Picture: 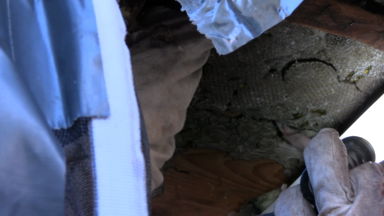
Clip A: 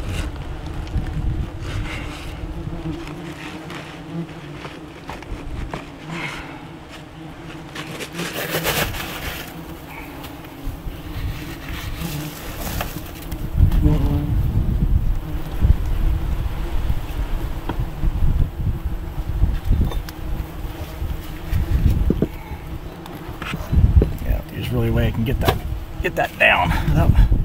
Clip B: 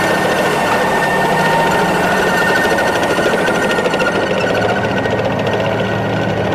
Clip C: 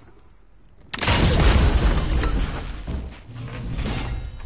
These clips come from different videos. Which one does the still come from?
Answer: A